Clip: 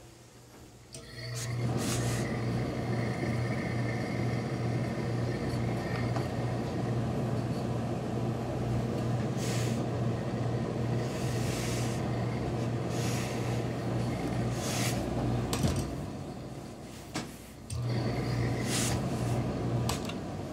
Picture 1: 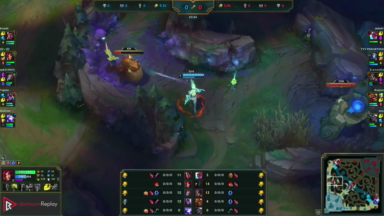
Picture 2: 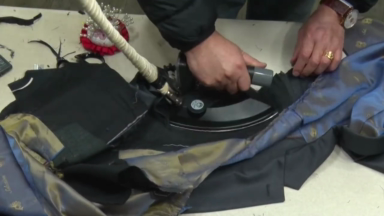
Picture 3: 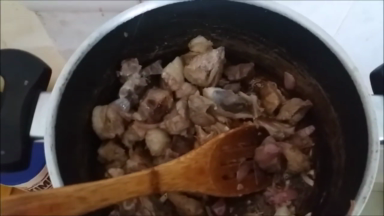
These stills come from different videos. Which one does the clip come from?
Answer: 2